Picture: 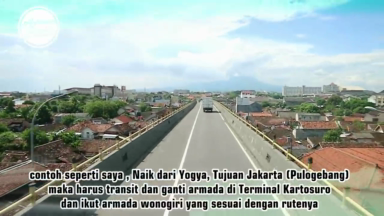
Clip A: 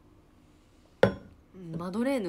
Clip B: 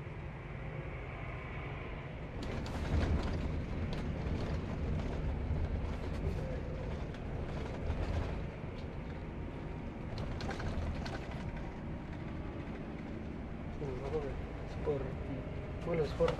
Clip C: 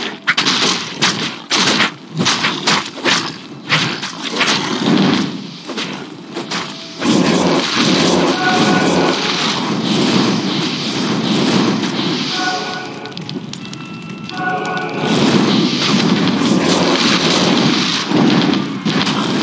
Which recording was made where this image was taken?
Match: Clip B